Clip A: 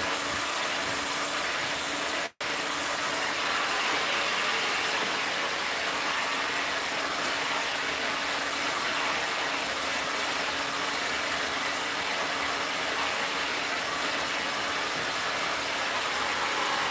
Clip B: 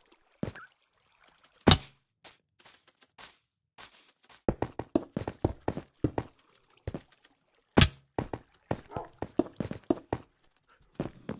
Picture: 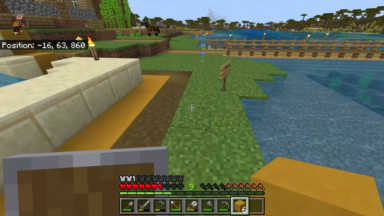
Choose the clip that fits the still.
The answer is B